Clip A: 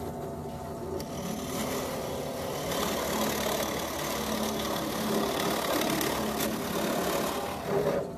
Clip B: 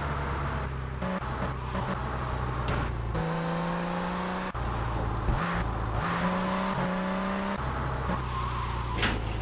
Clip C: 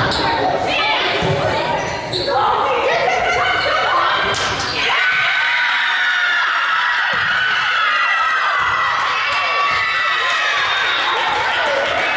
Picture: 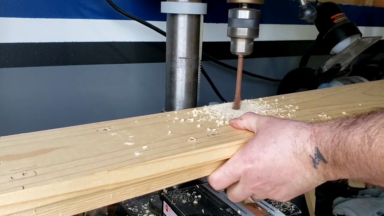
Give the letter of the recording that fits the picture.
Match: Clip A